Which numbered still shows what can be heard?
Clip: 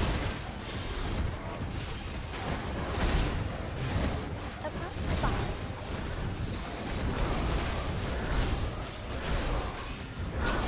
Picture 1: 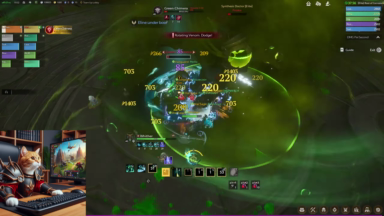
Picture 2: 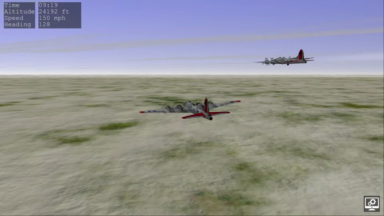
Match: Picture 1